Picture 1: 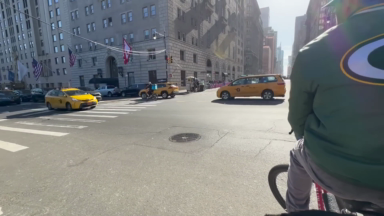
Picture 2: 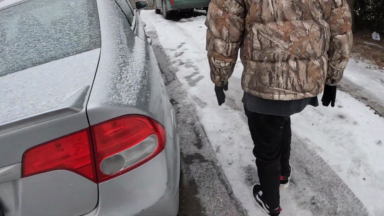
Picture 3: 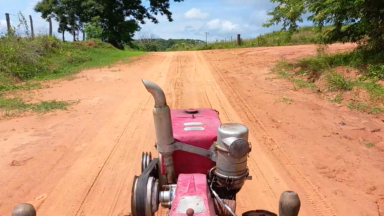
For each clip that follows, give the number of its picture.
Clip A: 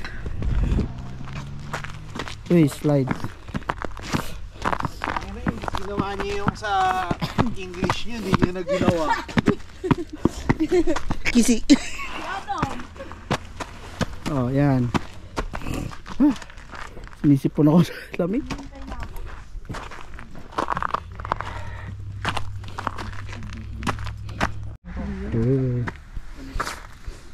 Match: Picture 2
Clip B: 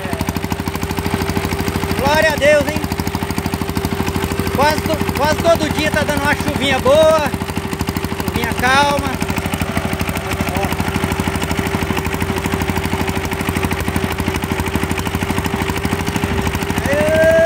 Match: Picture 3